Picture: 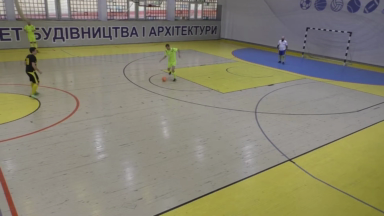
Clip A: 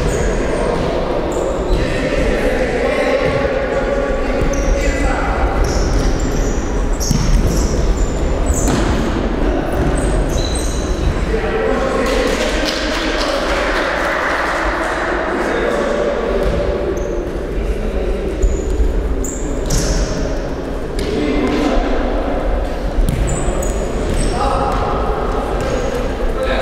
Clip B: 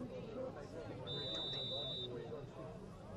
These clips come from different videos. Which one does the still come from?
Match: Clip A